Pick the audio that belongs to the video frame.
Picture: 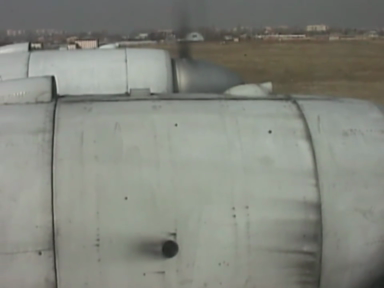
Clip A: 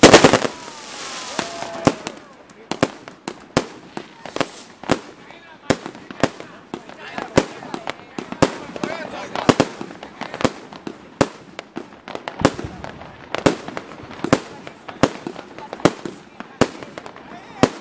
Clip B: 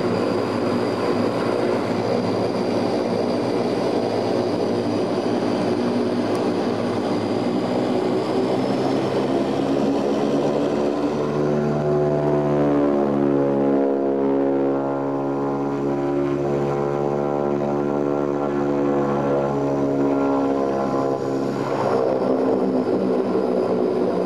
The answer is B